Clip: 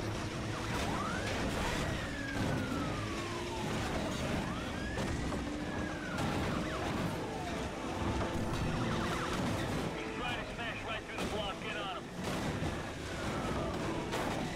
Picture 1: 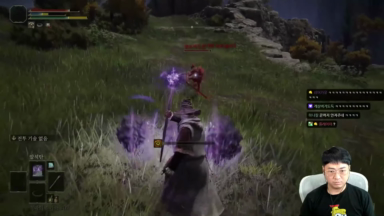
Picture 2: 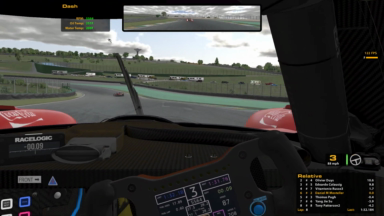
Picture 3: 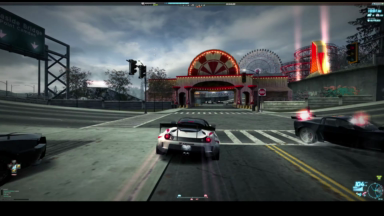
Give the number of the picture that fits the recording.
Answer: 3